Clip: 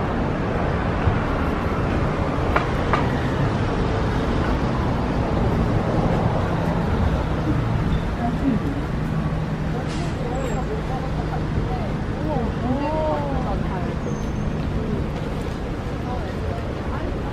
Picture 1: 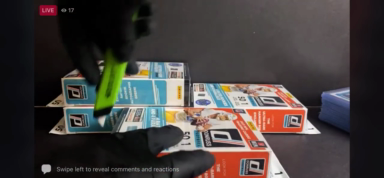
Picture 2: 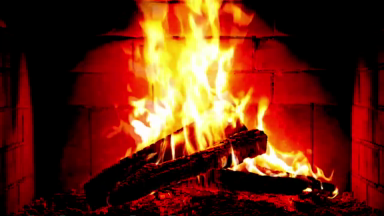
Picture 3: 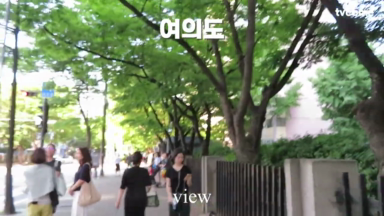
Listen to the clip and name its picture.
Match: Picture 3